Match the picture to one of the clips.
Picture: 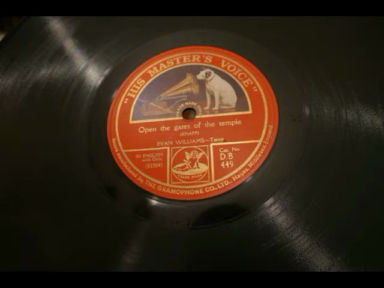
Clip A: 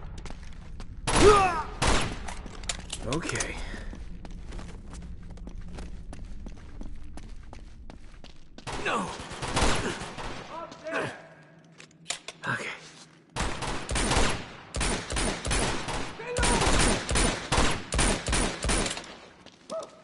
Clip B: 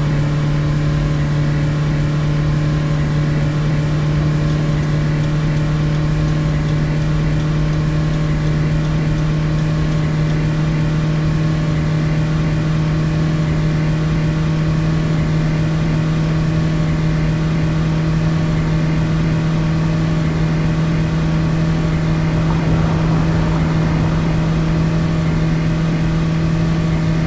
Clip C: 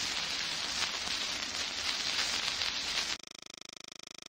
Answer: C